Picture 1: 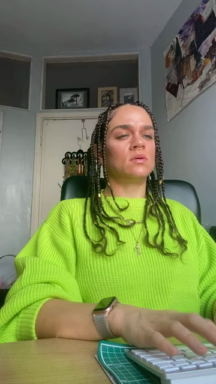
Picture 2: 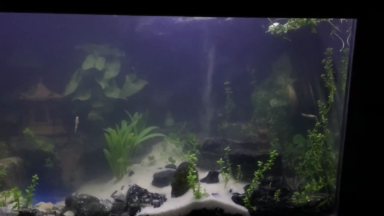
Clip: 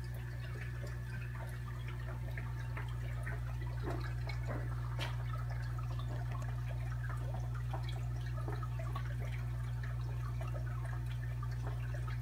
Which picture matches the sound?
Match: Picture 2